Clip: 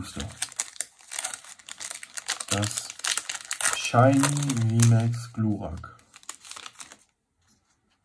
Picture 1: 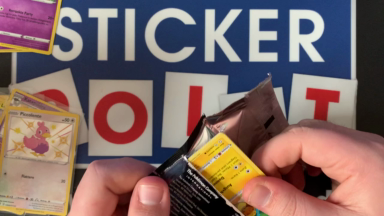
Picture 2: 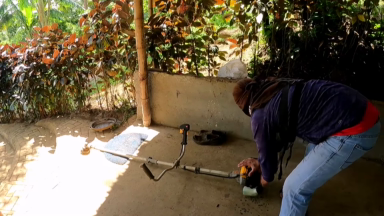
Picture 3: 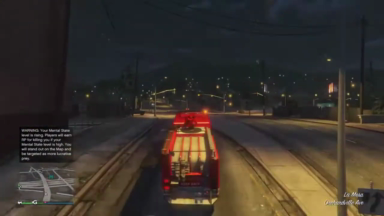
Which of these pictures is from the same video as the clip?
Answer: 1